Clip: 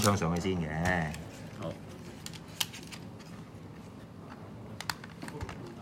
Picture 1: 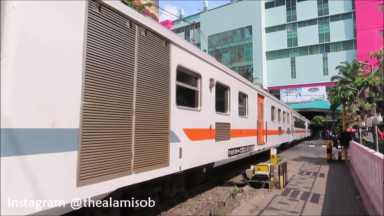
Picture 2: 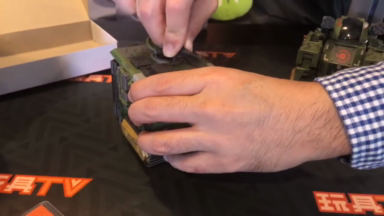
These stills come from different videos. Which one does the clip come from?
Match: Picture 2